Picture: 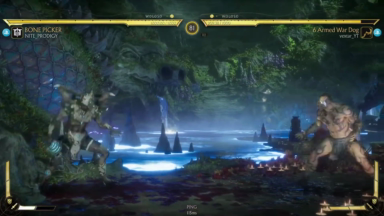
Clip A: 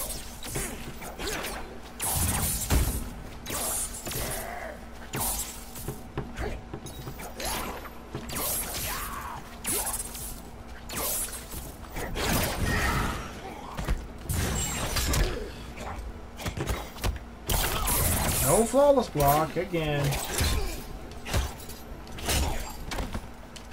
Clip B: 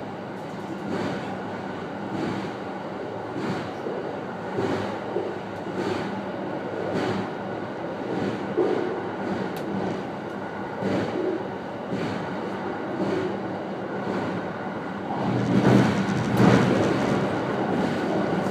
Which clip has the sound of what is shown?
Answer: A